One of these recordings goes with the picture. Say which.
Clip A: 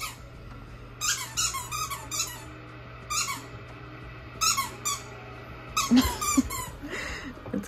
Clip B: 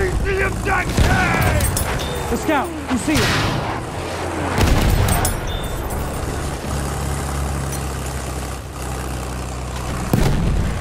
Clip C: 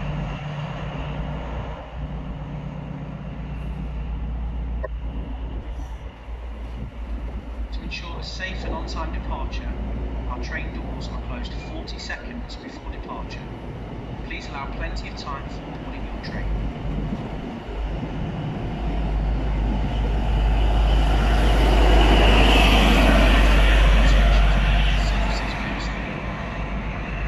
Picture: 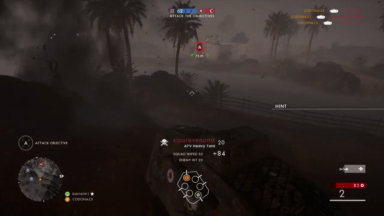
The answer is B